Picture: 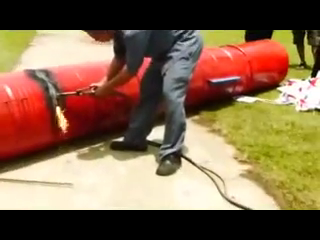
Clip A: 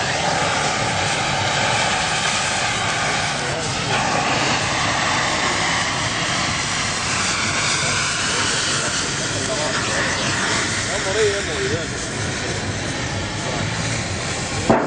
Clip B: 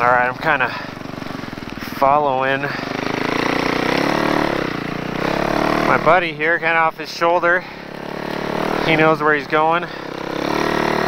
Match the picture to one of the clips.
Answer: A